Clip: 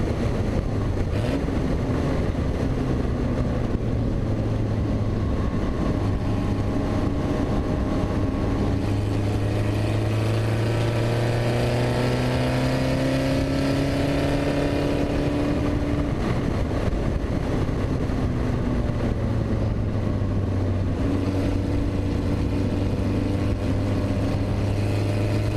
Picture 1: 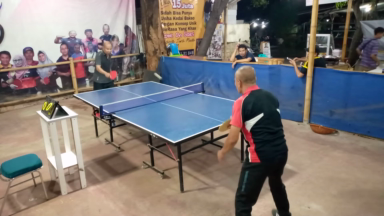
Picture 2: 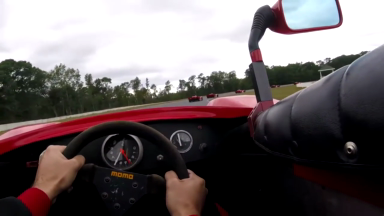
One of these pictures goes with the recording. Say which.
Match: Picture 2